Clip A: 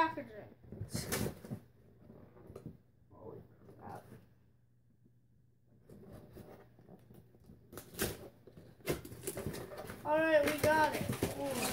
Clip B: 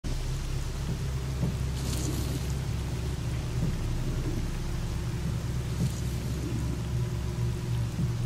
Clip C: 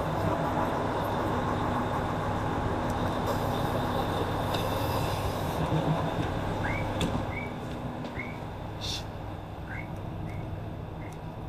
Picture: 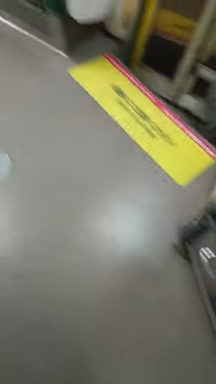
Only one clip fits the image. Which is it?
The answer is C